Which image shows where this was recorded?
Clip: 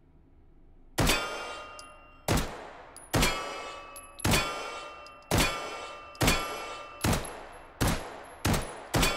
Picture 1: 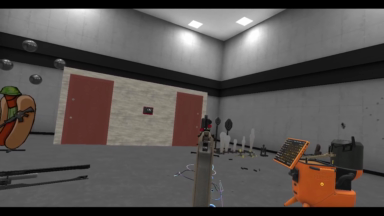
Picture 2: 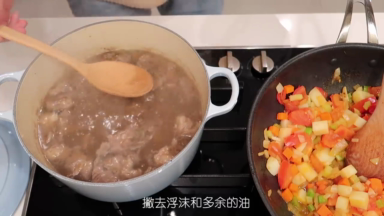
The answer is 1